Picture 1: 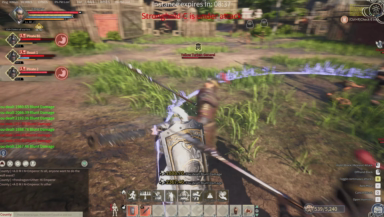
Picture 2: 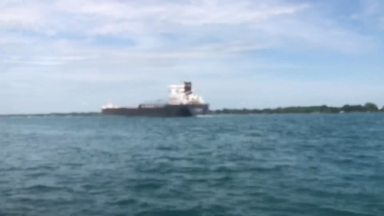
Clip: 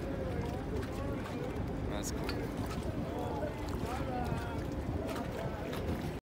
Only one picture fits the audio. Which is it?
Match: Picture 2